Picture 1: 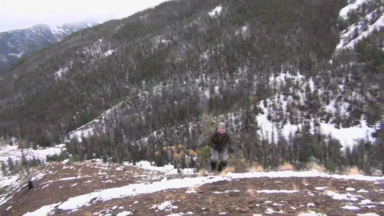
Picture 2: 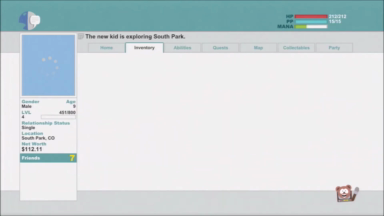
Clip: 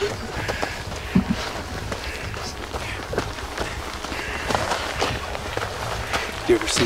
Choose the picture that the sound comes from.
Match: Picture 1